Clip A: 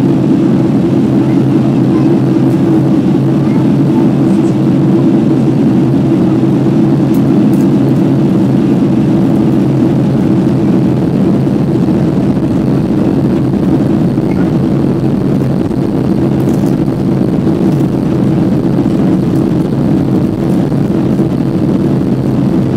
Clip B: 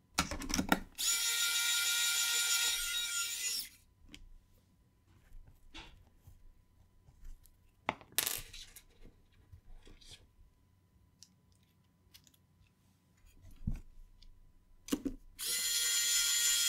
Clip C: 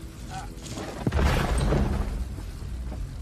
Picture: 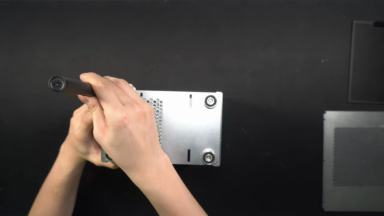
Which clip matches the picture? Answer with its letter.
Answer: B